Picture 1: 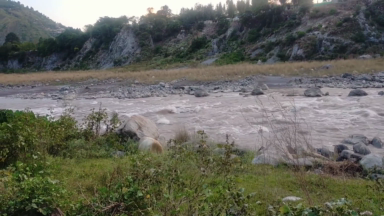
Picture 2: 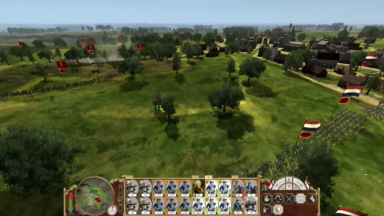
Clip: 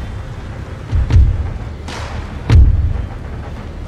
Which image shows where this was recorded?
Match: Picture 2